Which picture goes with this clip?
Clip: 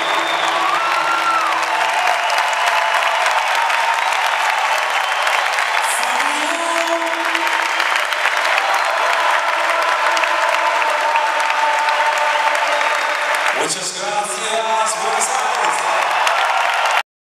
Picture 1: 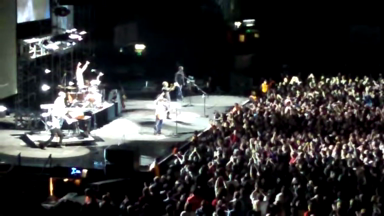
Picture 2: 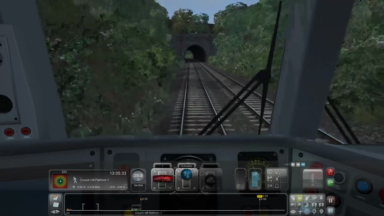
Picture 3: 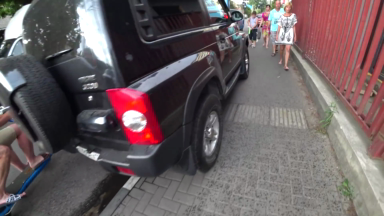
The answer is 1